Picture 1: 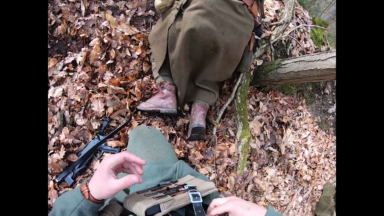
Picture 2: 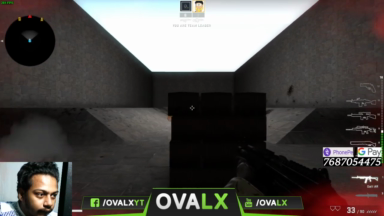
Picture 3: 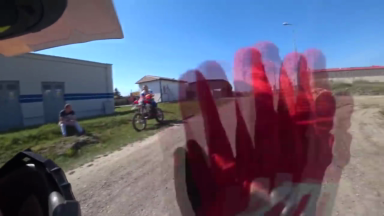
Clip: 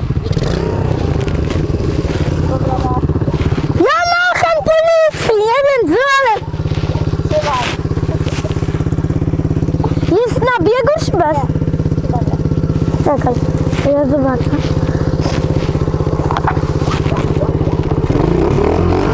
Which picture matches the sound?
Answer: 3